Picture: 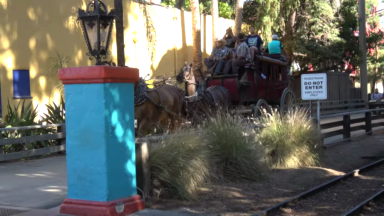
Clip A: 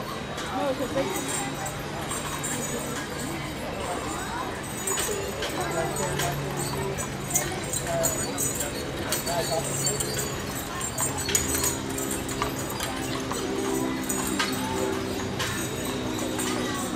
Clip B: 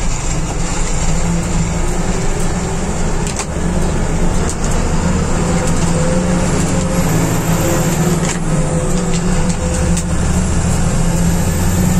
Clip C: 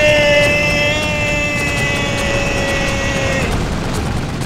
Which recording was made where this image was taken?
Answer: A